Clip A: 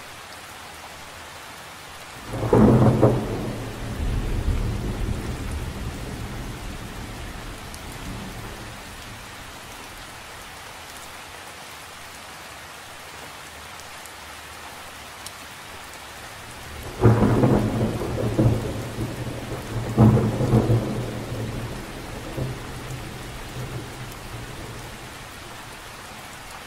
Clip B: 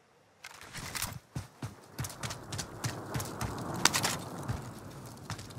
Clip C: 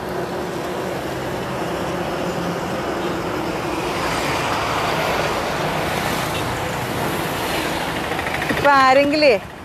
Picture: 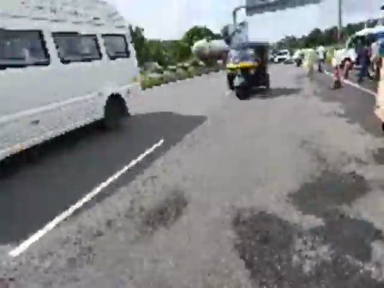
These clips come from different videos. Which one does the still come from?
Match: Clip C